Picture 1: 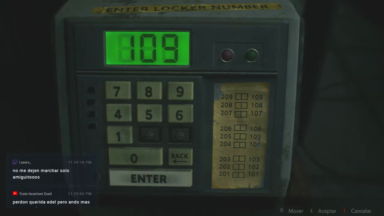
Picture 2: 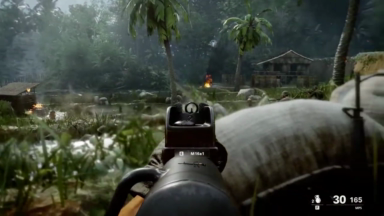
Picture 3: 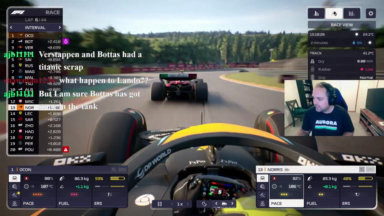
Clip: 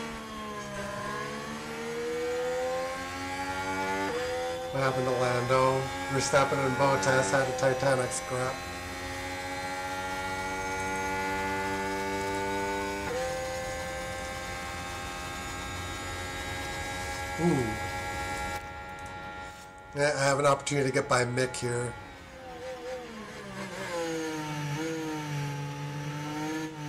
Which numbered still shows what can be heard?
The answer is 3